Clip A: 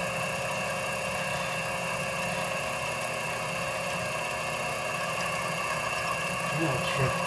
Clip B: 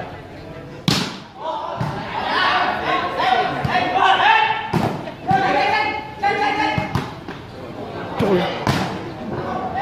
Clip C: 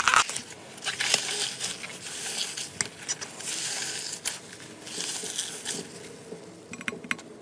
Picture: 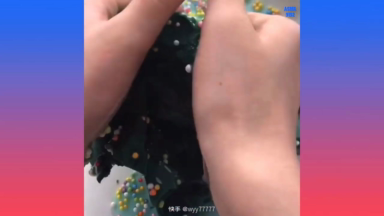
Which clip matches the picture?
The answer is C